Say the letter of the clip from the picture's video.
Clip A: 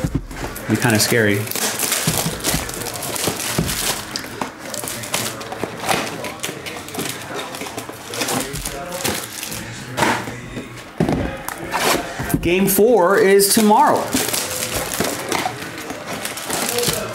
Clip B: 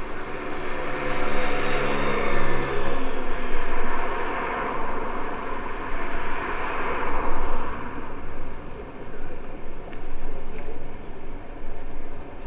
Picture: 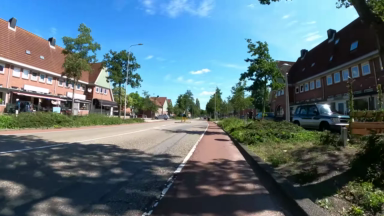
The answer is B